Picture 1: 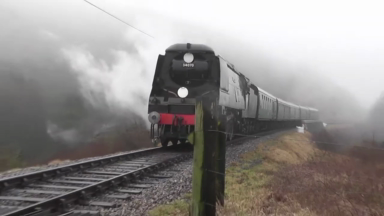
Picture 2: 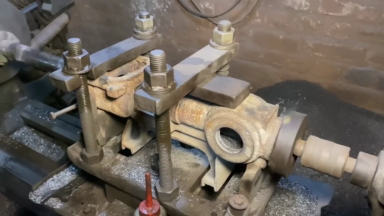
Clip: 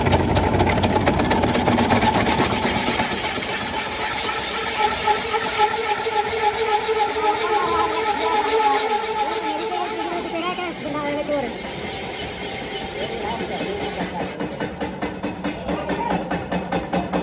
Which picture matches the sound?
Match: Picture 2